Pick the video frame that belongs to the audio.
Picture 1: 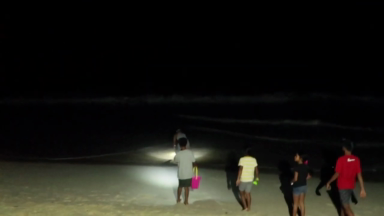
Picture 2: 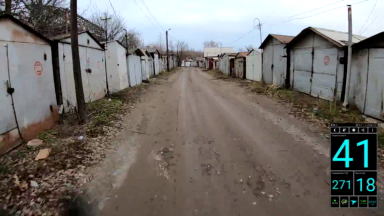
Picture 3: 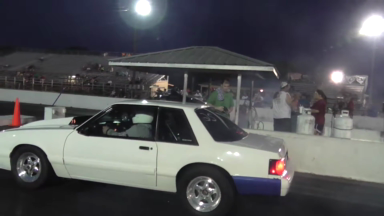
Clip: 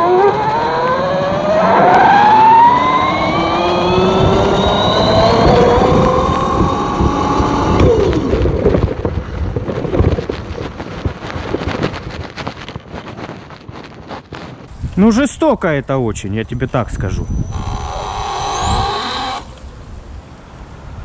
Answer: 2